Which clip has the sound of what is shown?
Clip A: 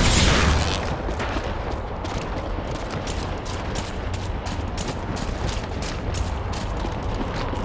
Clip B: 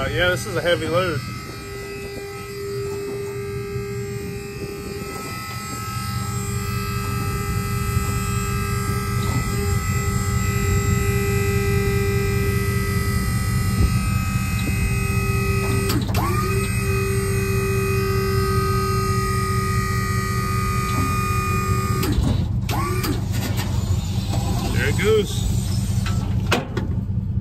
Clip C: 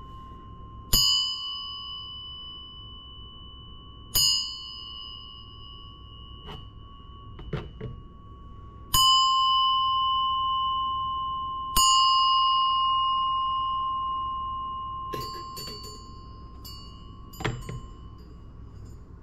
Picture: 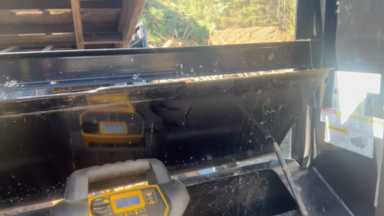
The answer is B